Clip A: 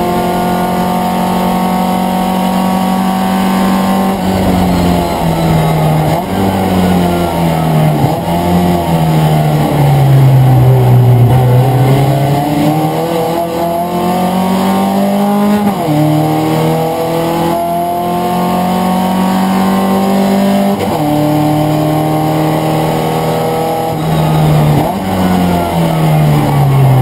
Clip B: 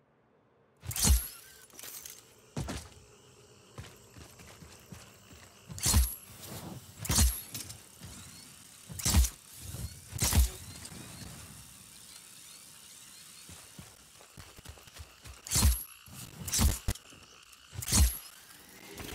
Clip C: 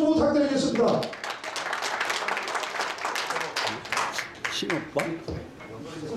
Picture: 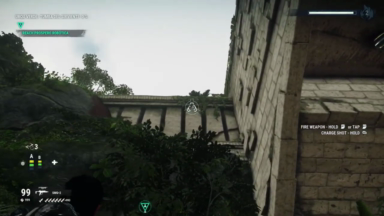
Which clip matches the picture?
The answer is B